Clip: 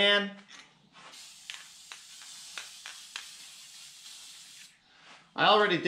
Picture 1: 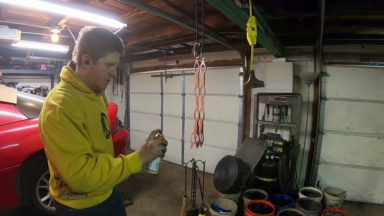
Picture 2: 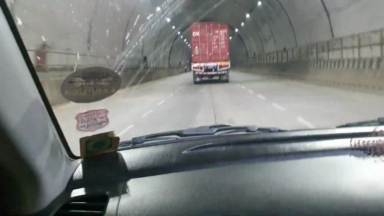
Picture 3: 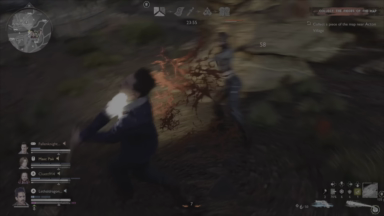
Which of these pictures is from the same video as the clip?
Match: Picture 1